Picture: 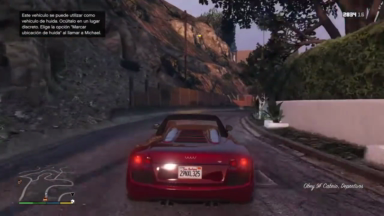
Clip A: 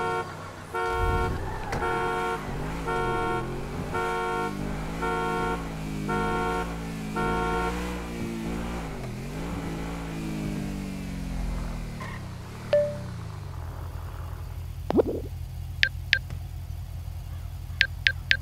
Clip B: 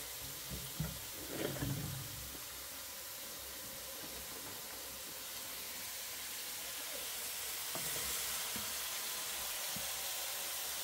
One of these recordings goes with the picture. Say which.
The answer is A